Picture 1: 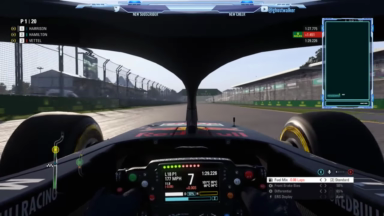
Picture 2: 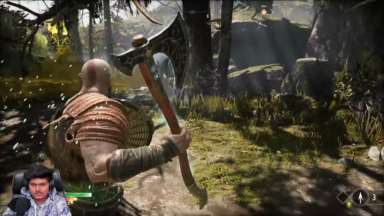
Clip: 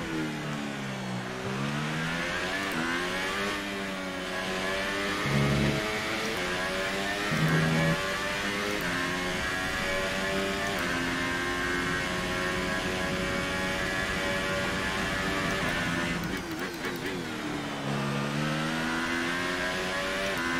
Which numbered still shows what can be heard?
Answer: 1